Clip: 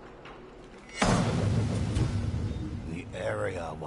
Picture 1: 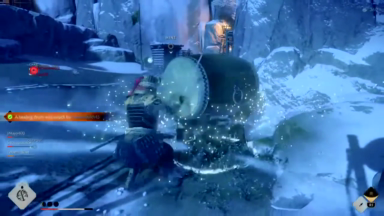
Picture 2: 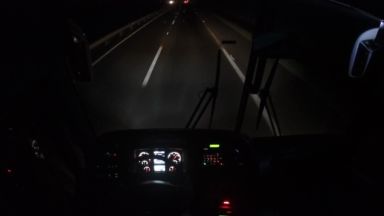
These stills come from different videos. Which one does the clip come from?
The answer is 1